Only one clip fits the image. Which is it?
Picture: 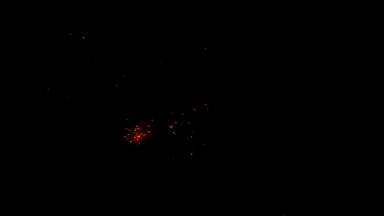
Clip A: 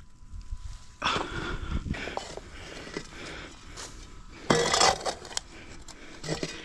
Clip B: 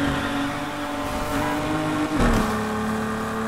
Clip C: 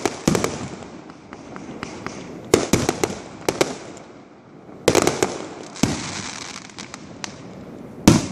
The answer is C